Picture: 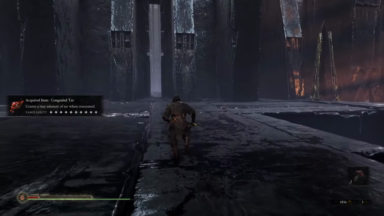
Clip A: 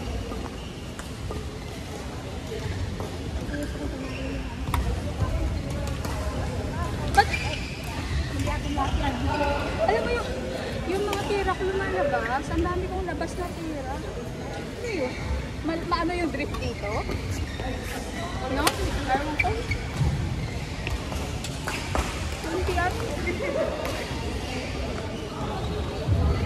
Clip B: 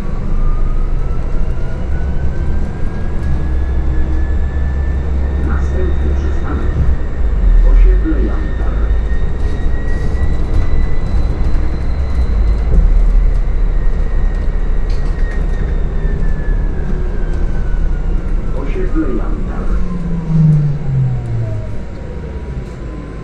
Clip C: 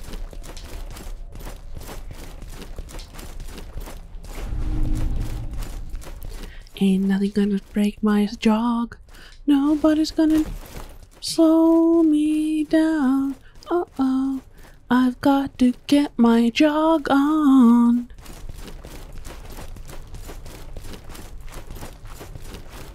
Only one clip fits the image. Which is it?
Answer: C